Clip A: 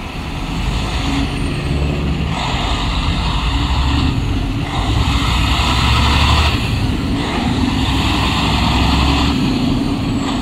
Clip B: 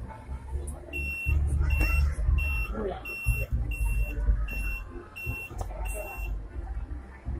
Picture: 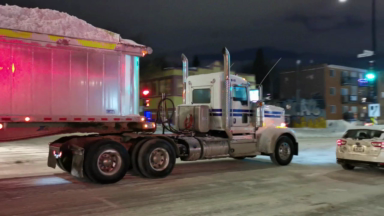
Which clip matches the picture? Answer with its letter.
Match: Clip A